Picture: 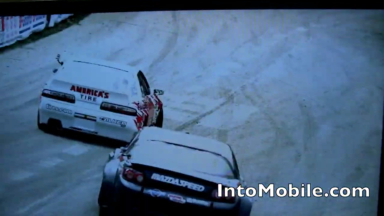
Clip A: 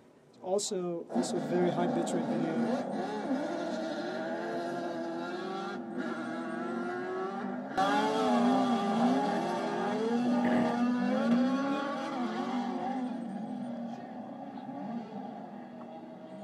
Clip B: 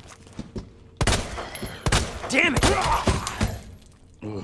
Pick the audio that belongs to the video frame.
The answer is A